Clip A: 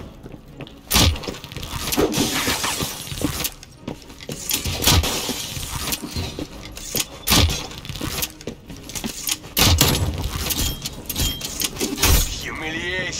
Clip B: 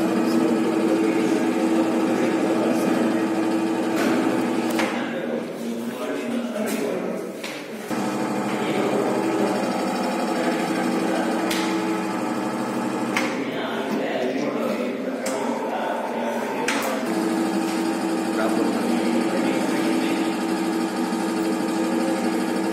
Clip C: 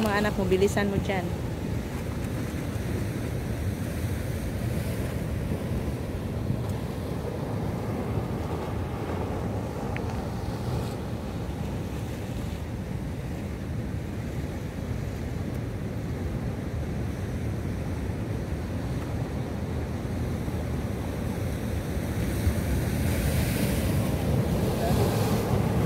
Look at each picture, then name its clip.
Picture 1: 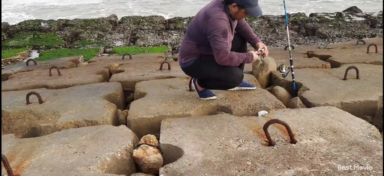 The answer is C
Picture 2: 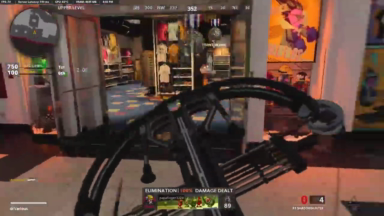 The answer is A